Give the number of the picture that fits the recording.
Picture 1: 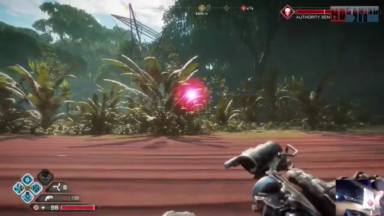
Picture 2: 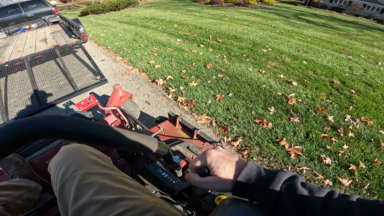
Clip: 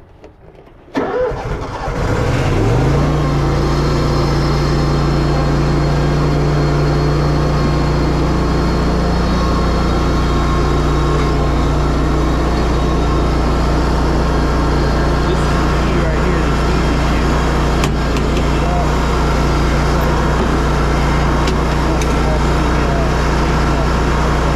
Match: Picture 2